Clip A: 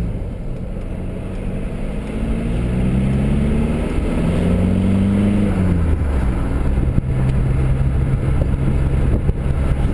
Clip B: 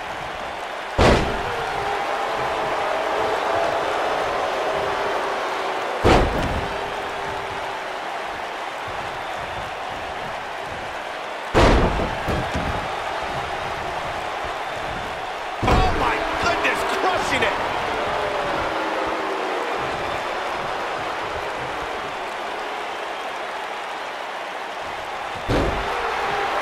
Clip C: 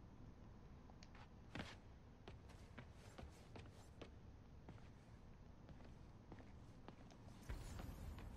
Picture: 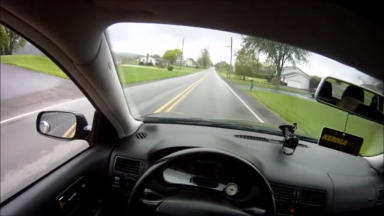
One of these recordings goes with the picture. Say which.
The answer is A